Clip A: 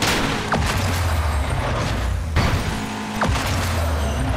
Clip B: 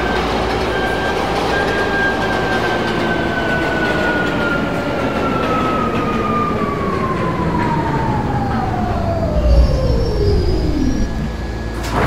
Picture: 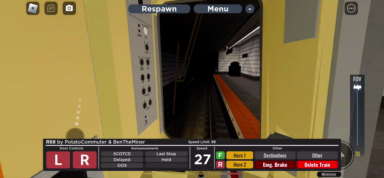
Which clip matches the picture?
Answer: B